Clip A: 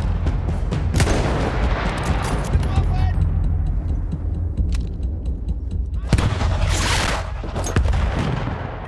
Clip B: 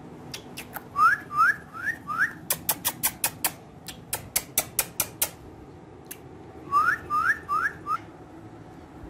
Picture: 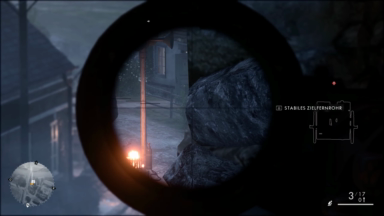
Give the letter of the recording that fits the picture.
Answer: A